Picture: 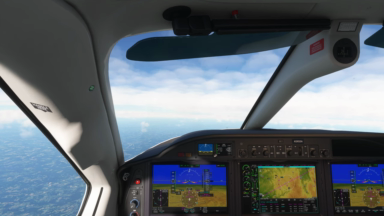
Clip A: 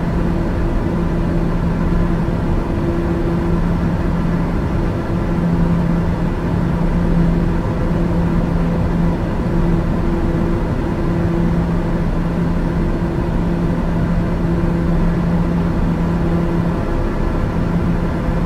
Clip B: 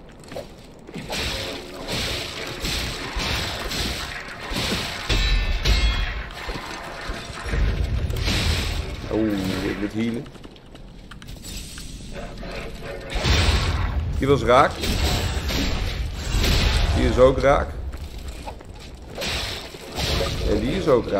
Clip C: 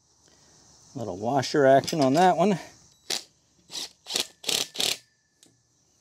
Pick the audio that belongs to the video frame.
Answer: A